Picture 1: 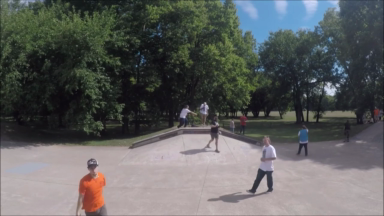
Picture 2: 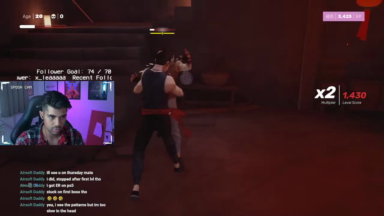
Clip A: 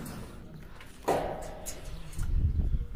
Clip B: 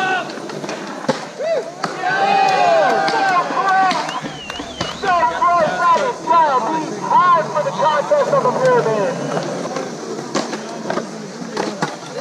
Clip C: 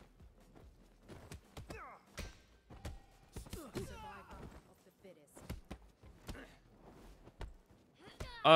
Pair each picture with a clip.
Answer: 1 B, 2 C